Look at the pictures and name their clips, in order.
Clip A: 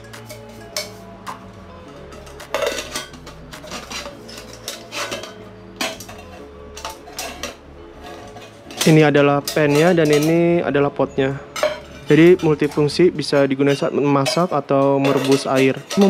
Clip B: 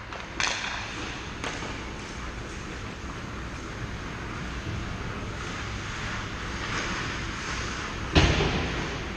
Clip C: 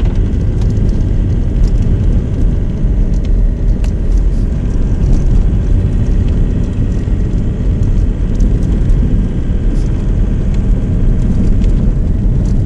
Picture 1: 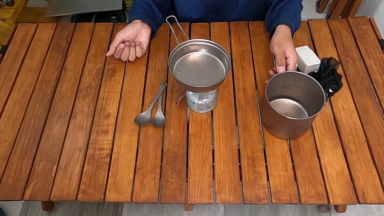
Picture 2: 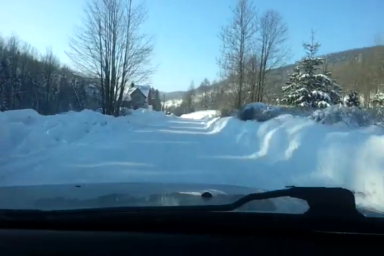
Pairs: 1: A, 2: C